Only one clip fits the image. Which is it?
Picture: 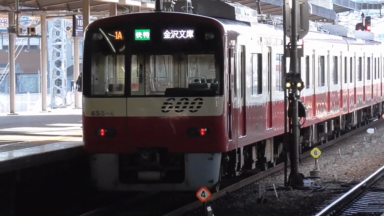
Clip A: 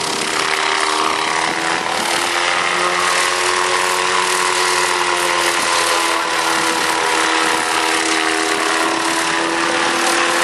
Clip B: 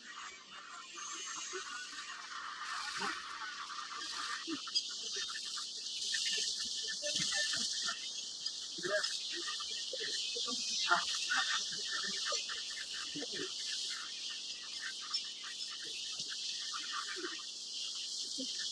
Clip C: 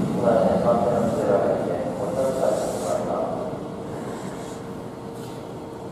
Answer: C